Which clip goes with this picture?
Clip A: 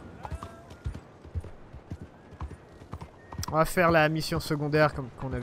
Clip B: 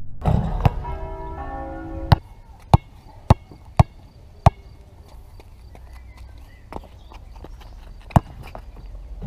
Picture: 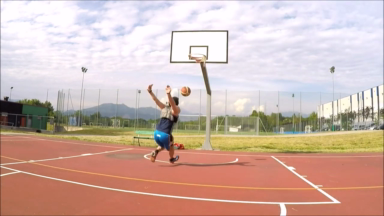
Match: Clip B